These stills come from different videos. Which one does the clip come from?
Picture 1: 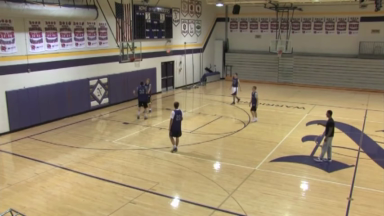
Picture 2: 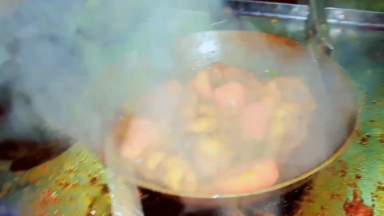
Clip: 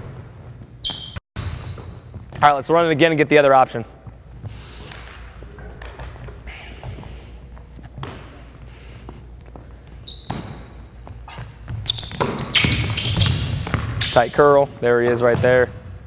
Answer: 1